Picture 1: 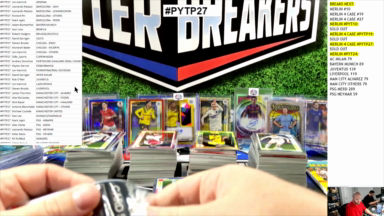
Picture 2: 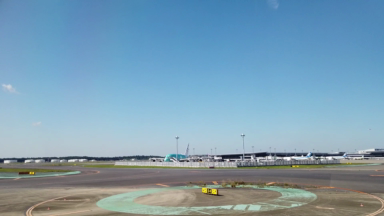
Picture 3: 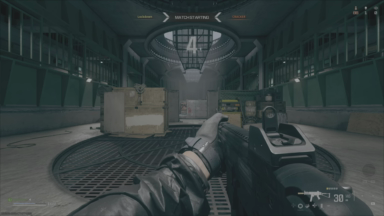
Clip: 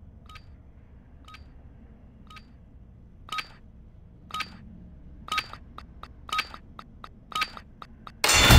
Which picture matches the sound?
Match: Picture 3